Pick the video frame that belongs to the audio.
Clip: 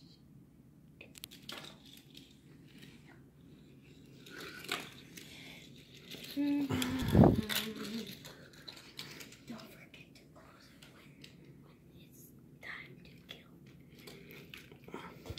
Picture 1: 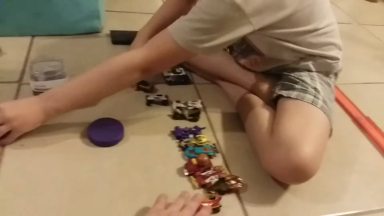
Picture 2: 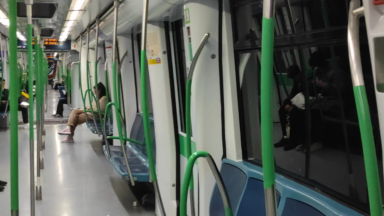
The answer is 1